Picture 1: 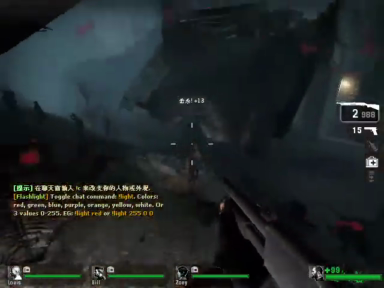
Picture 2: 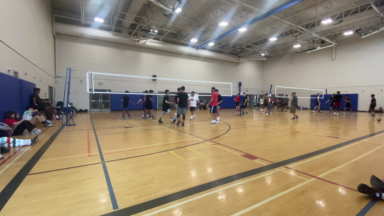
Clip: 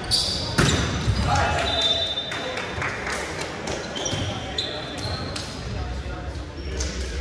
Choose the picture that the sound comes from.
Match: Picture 2